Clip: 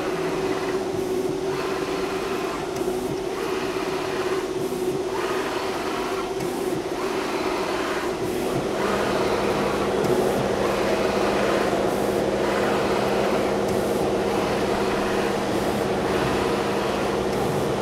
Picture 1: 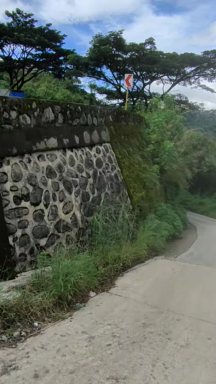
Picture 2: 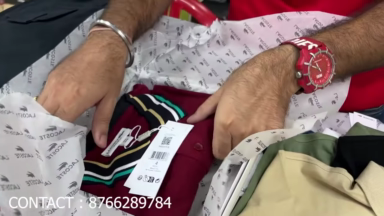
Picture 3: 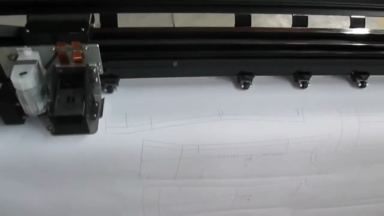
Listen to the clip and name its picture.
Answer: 3